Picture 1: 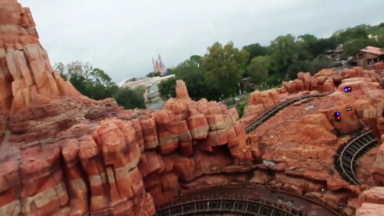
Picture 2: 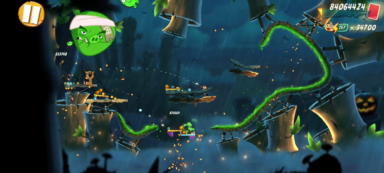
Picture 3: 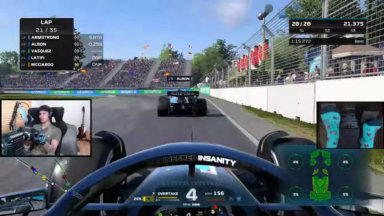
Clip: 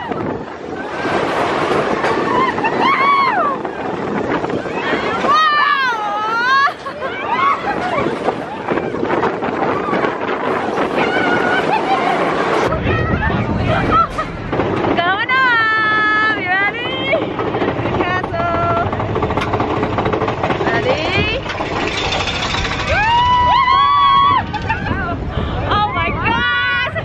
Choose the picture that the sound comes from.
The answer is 1